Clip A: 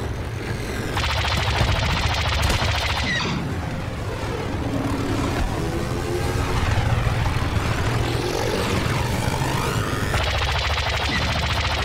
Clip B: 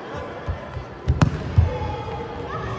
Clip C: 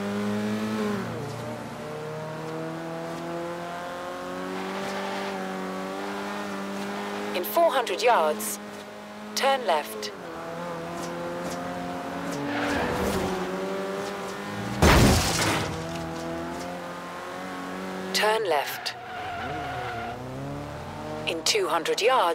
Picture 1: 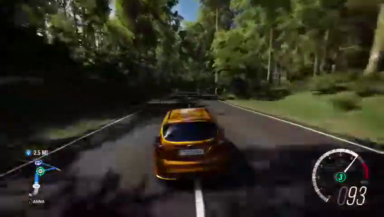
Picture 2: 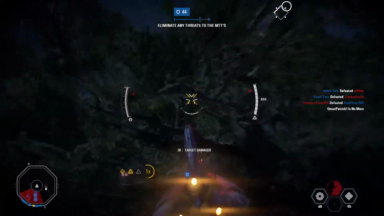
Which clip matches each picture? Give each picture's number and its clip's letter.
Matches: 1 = C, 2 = A